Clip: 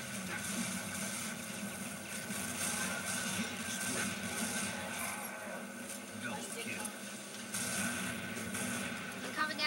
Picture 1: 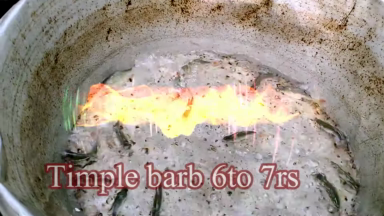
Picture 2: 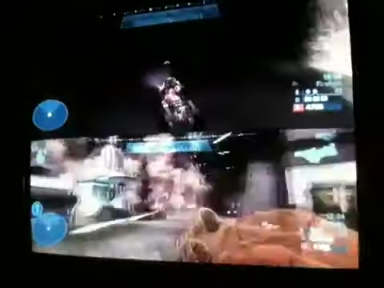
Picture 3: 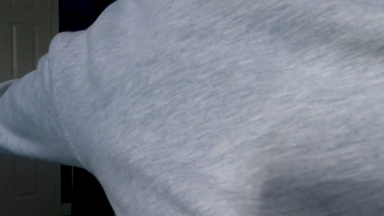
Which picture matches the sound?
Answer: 2